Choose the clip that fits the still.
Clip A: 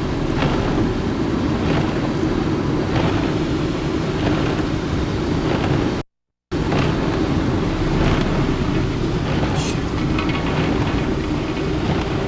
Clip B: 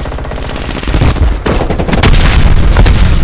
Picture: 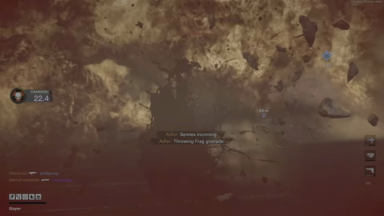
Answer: B